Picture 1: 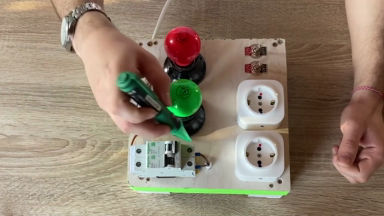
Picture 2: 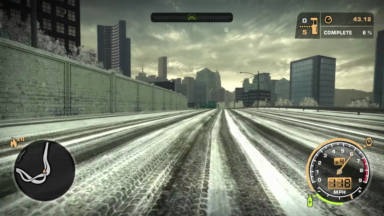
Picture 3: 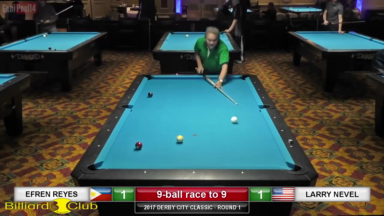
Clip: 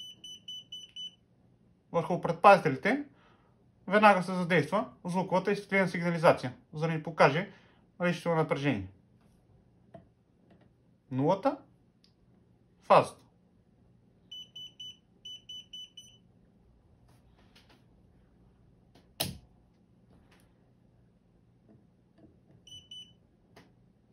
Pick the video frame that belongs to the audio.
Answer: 1